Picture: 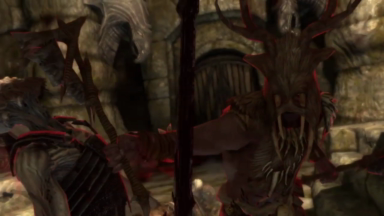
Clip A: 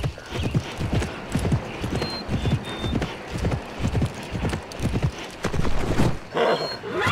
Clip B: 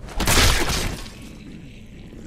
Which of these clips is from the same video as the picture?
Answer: B